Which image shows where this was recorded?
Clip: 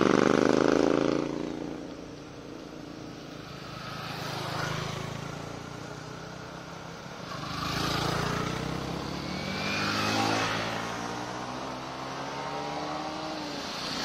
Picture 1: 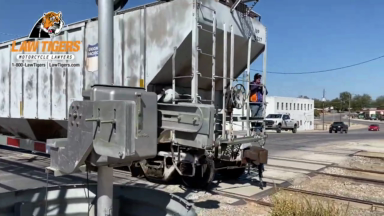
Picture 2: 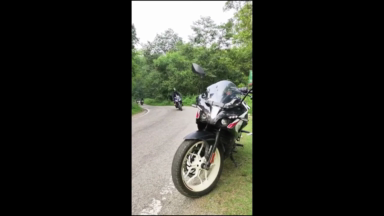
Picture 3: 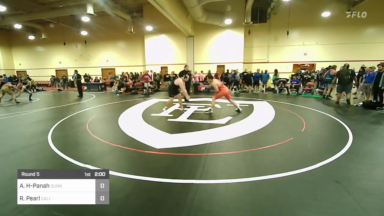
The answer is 2